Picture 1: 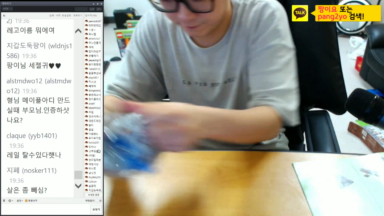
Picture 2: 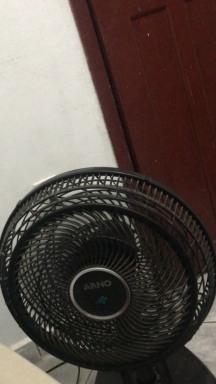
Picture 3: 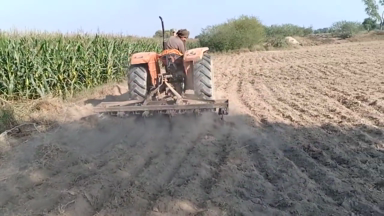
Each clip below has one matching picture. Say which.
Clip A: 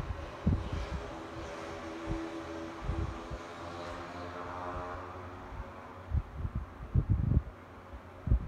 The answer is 2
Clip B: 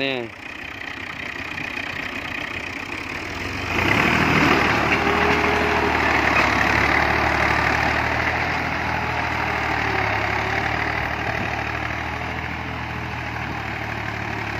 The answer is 3